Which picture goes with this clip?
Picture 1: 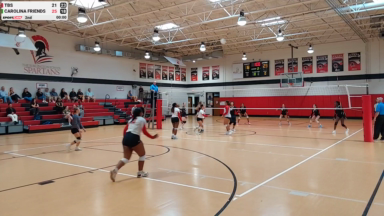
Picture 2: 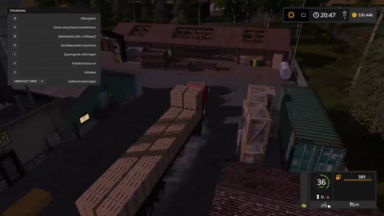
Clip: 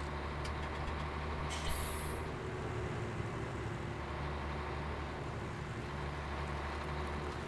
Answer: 2